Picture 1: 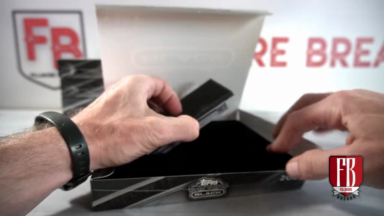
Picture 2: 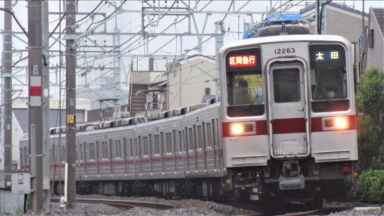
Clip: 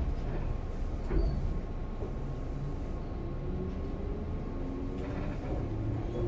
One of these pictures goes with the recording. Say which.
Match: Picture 2